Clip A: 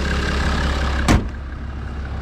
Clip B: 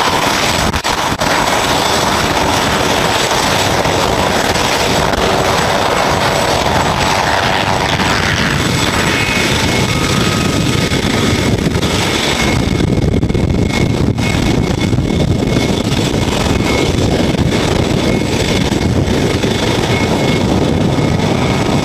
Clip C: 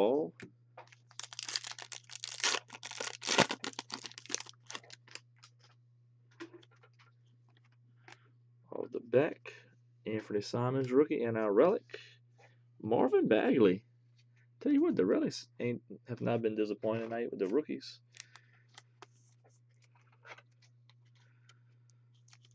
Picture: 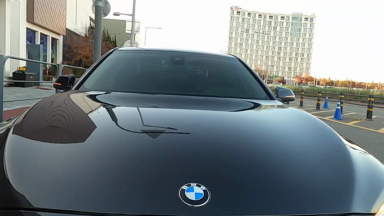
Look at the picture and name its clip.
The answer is A